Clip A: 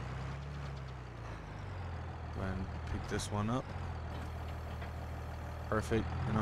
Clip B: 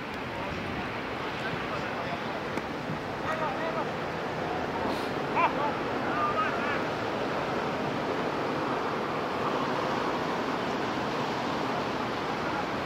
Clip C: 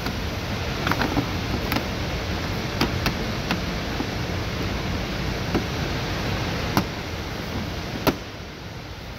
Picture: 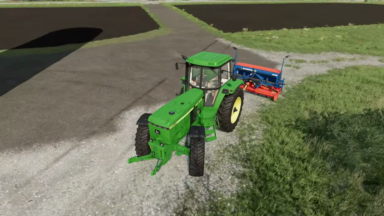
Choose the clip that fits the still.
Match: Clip A